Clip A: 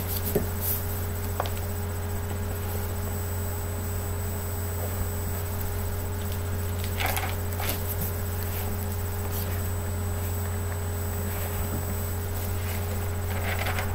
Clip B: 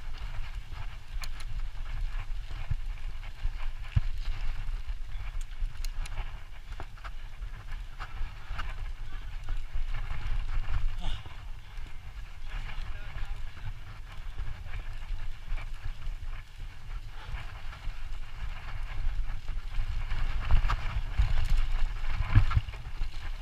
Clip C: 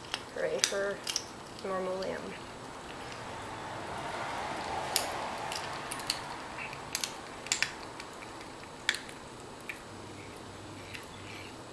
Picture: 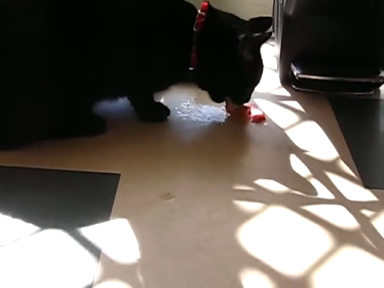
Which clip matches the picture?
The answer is C